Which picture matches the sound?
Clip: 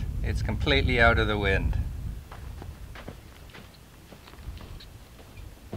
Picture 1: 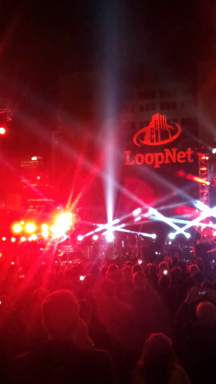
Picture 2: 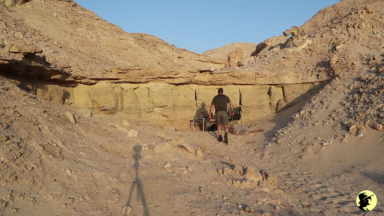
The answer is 2